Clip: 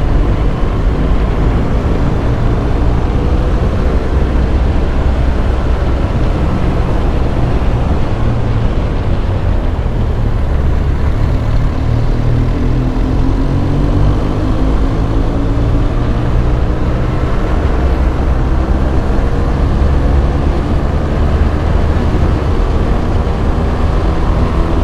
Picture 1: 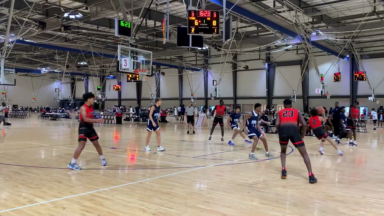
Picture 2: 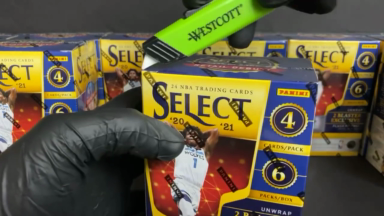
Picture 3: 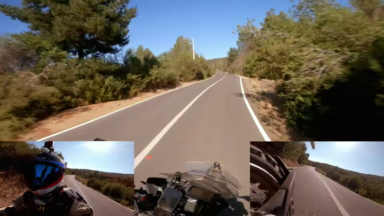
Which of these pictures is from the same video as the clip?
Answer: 3